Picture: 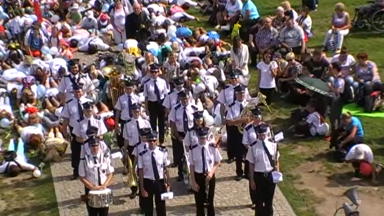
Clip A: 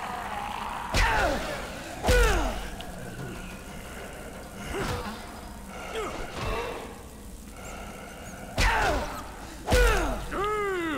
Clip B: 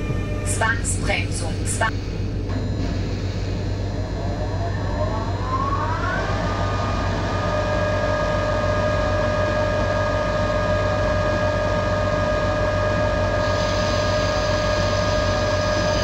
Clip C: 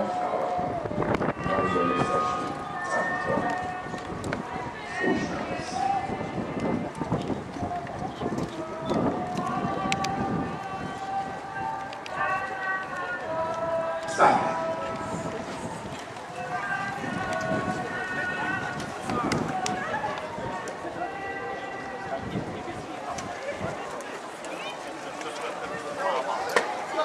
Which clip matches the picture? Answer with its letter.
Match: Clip C